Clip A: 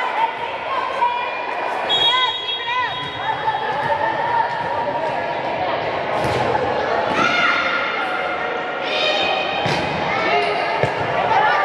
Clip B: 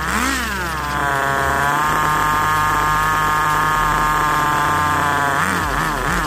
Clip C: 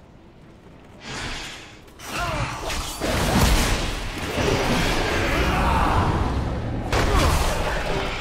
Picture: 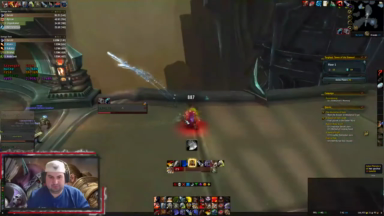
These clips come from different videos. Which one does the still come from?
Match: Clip C